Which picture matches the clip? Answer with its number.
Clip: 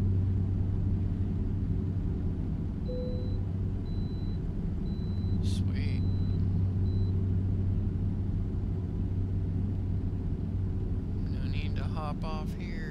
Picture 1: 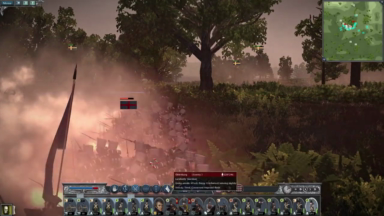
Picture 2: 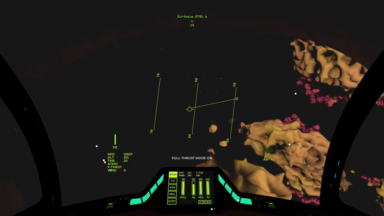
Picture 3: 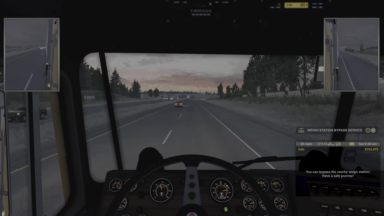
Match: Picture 3